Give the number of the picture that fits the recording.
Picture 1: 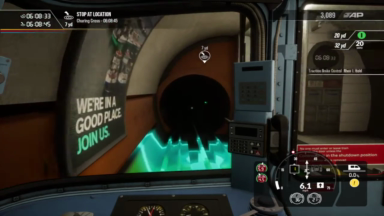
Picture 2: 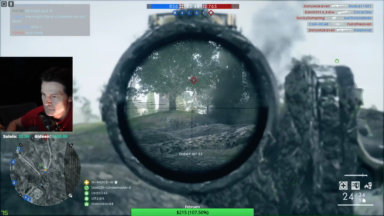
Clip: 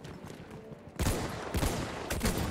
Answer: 2